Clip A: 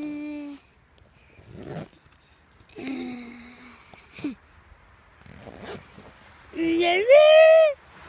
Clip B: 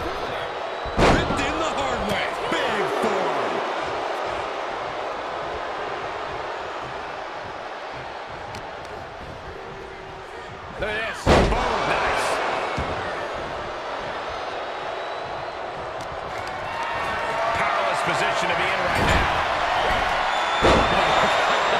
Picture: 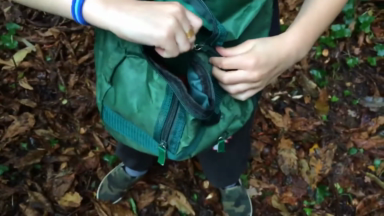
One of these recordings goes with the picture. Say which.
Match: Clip A